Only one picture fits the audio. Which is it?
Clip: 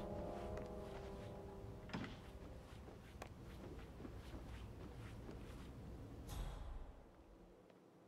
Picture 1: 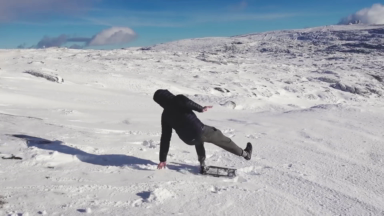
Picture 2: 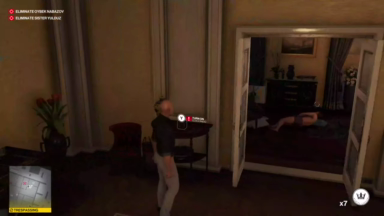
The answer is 2